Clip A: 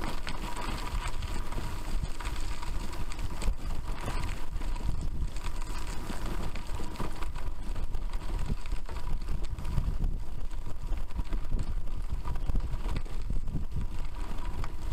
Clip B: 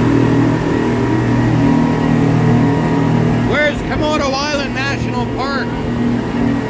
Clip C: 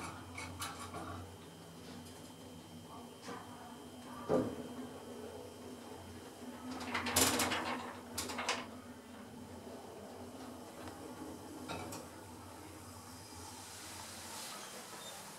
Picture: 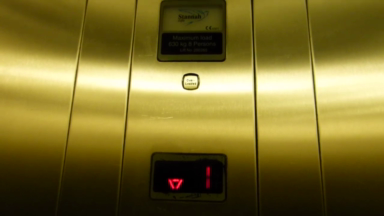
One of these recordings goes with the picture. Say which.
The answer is C